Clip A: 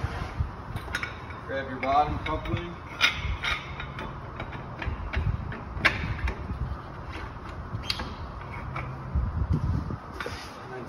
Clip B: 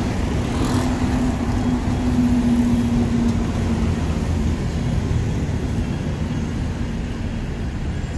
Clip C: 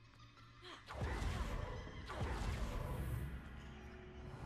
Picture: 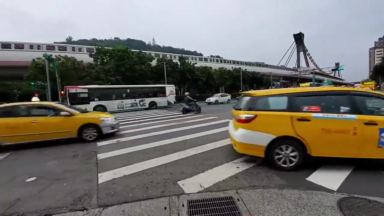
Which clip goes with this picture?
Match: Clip B